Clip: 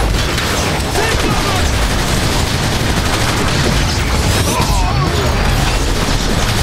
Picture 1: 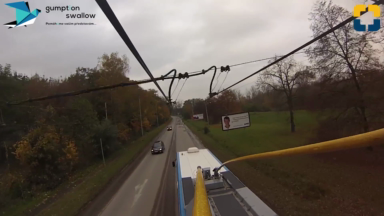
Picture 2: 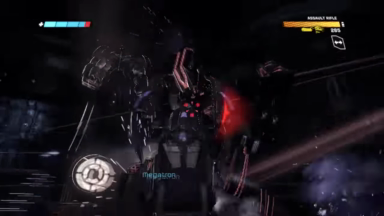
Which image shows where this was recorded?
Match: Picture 2